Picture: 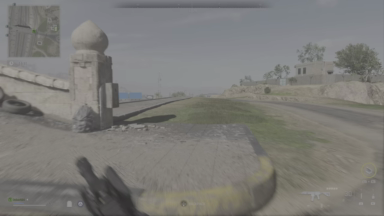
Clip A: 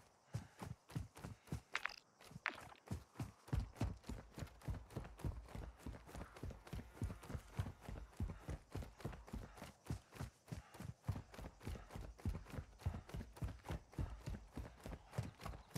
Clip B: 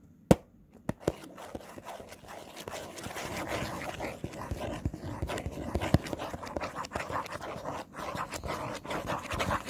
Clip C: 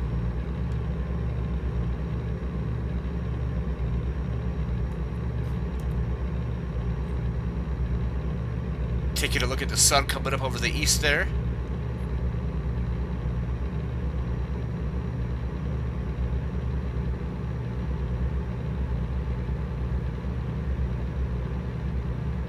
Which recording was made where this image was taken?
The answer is A